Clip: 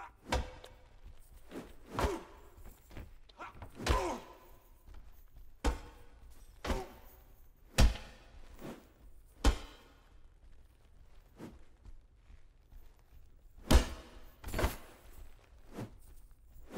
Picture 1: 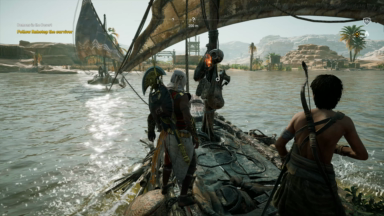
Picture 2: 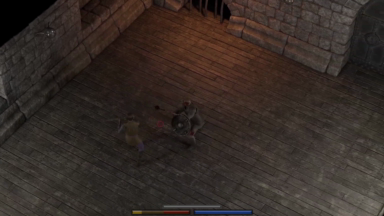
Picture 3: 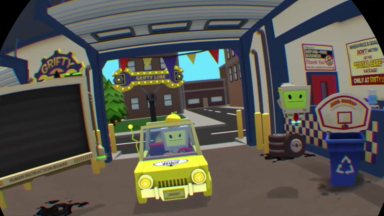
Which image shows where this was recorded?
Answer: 2